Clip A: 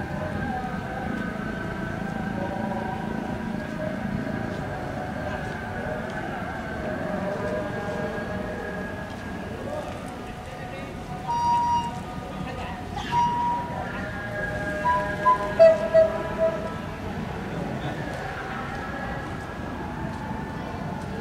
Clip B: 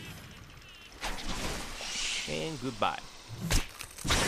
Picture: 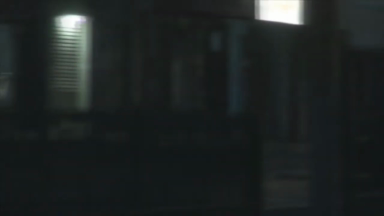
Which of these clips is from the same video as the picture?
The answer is A